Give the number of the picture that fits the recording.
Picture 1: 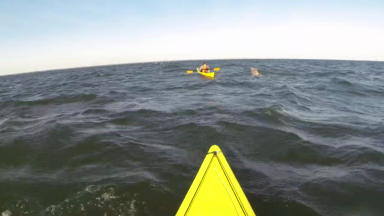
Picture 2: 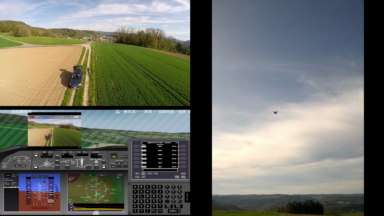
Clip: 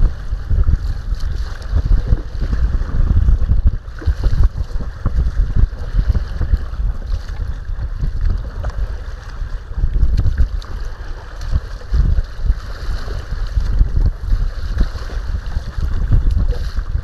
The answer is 1